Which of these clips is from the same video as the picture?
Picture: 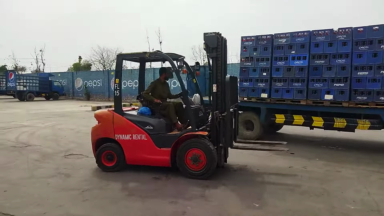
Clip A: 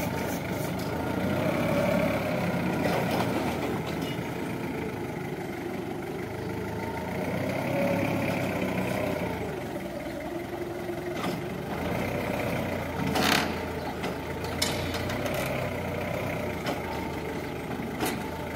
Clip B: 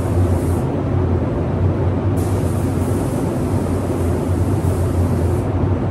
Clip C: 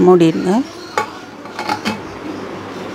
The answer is A